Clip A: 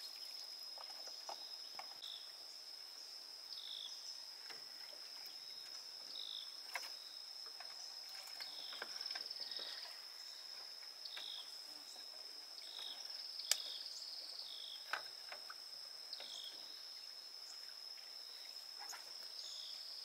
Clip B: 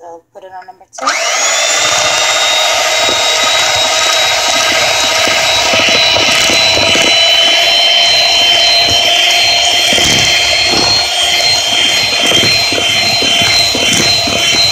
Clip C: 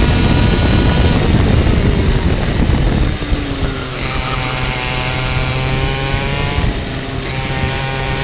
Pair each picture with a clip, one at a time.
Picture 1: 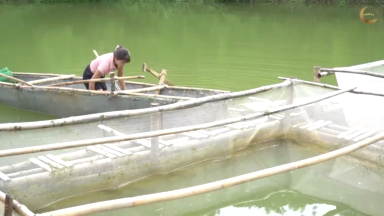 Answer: A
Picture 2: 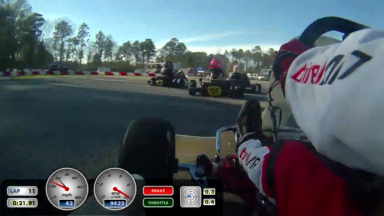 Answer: C